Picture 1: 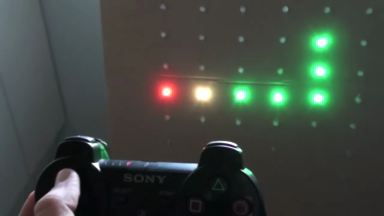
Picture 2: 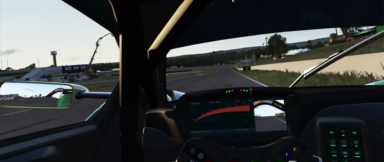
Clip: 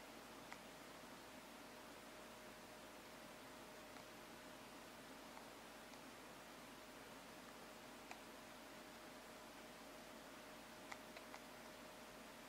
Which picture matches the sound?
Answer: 1